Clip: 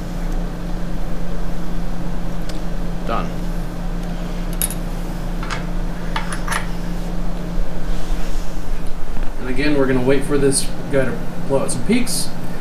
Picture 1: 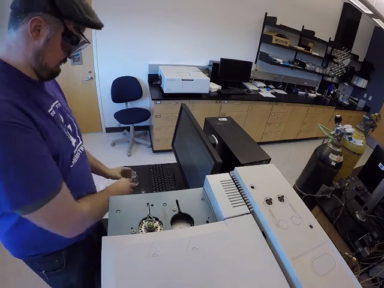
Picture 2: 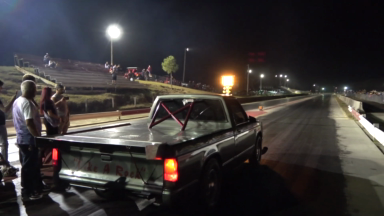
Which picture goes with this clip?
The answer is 1